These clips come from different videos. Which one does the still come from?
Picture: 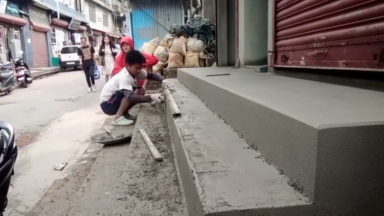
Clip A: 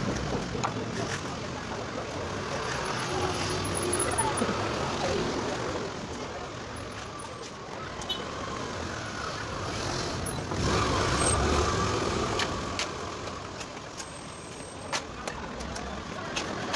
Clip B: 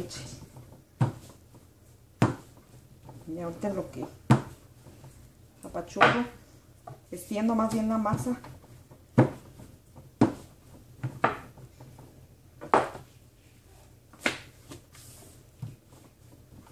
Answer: A